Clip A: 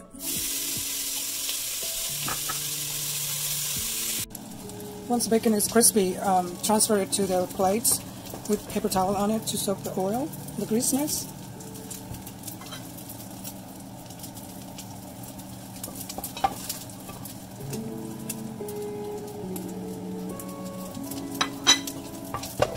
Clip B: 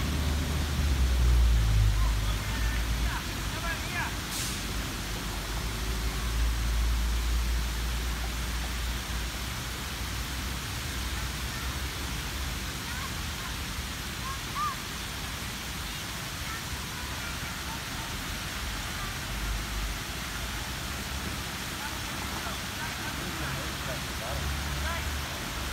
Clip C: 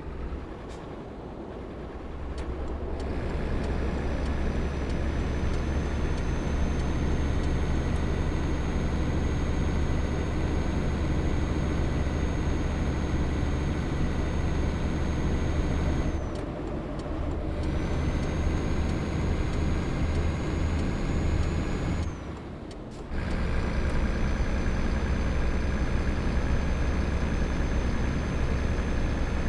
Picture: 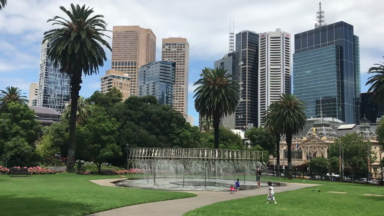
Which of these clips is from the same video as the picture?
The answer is B